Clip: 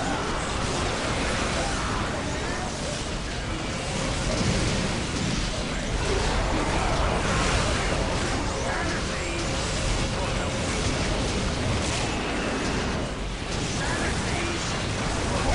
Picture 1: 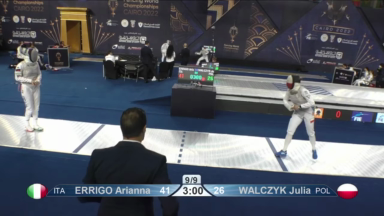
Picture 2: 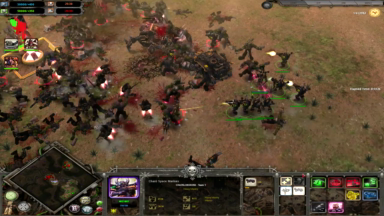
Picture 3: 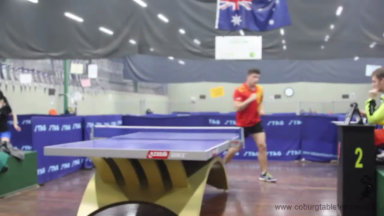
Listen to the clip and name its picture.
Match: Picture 2